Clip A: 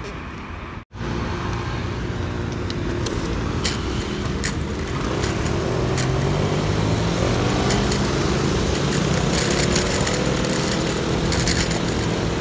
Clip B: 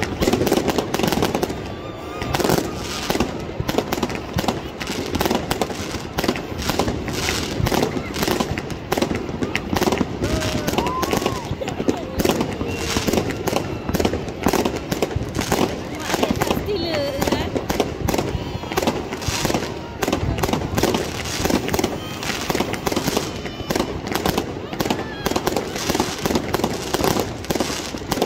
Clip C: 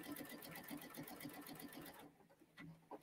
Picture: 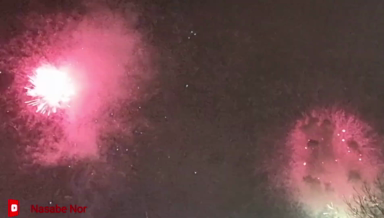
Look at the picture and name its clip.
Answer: B